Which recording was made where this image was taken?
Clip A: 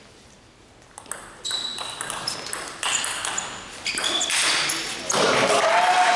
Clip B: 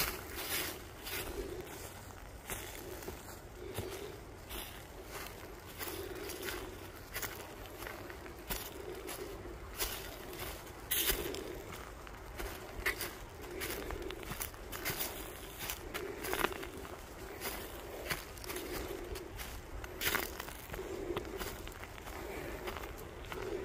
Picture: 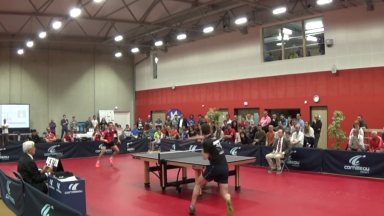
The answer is A